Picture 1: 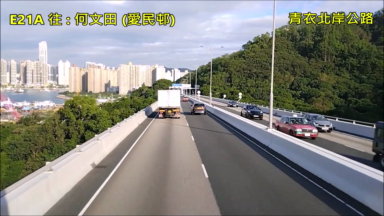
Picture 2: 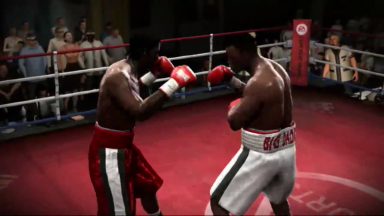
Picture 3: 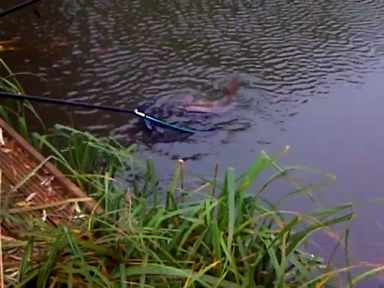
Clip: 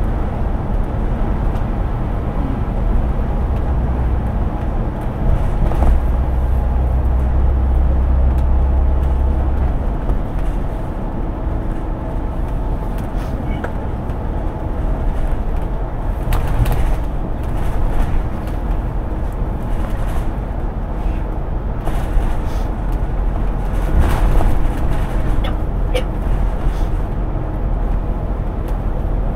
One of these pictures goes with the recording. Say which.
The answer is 1